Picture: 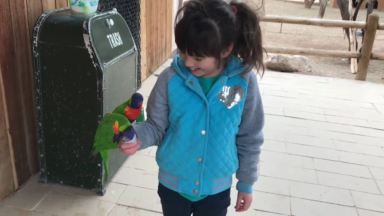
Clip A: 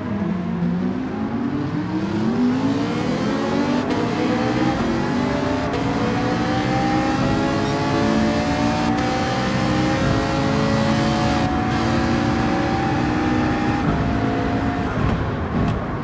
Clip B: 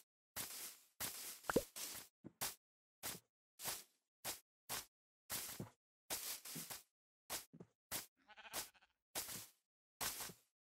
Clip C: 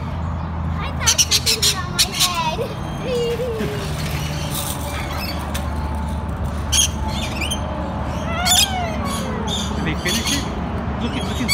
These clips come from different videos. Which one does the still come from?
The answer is C